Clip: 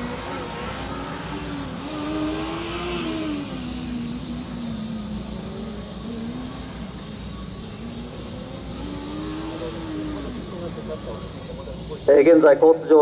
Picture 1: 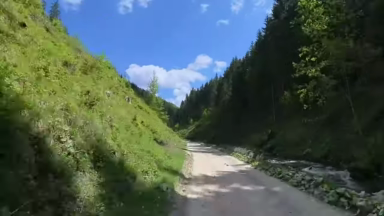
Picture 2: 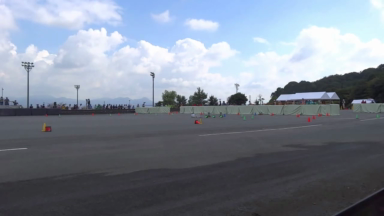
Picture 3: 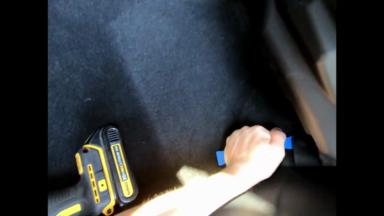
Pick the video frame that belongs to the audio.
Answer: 2